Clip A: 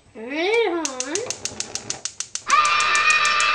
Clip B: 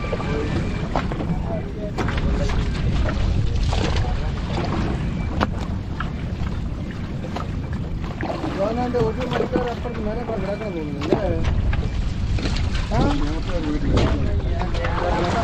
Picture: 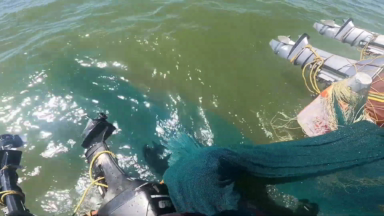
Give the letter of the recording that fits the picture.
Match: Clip B